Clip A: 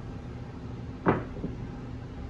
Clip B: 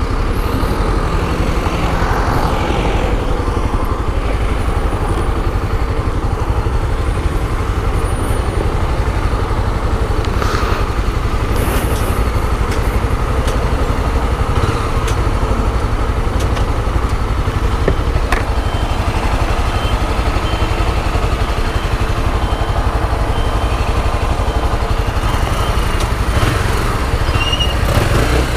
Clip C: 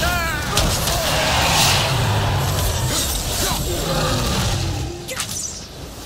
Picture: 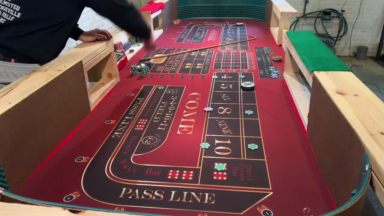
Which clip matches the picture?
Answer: A